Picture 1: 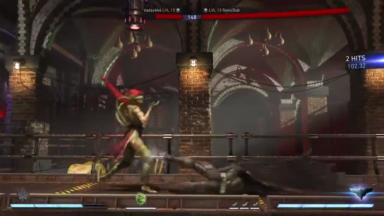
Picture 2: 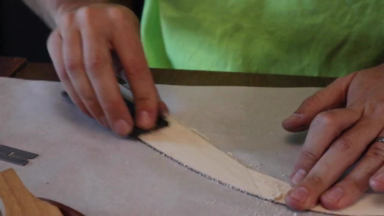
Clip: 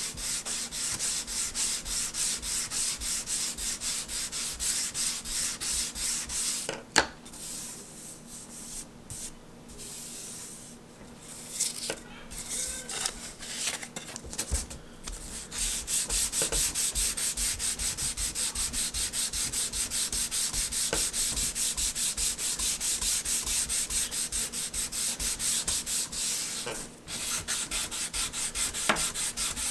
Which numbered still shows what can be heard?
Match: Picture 2